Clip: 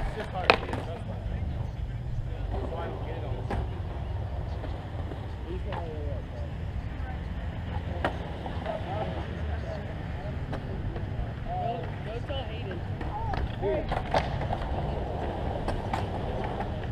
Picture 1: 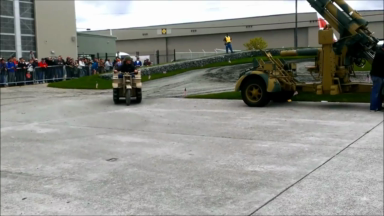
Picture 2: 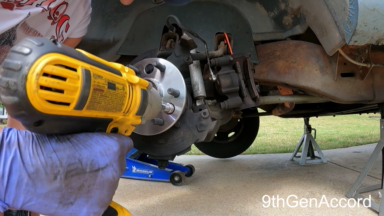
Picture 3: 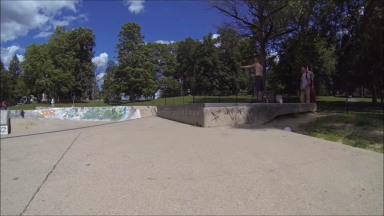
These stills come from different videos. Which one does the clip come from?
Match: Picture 3